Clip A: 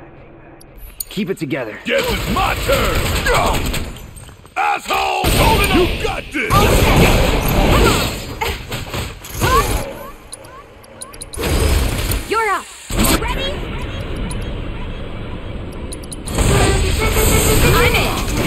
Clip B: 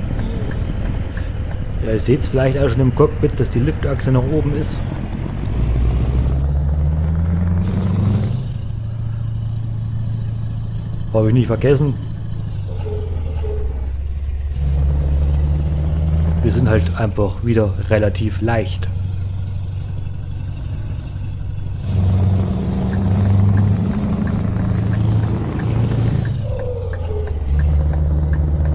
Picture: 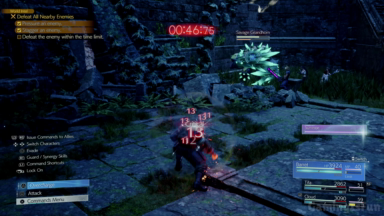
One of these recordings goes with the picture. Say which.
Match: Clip A